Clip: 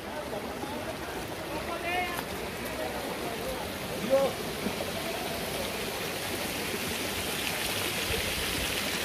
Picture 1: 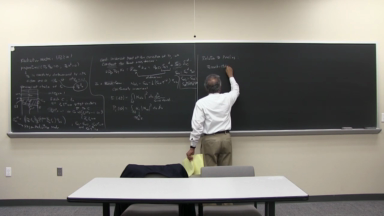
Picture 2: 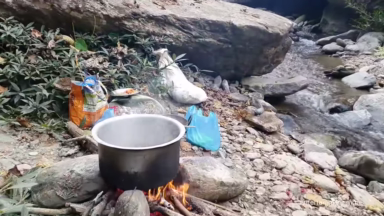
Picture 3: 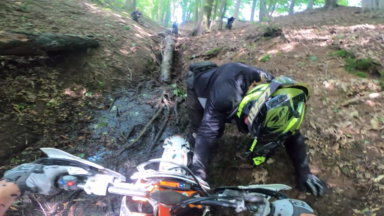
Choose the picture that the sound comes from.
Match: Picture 2